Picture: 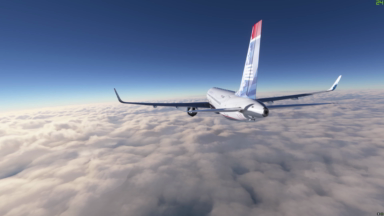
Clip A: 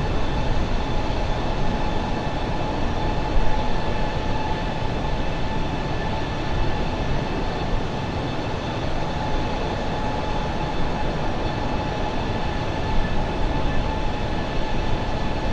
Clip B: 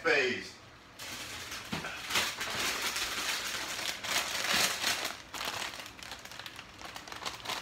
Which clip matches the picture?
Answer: A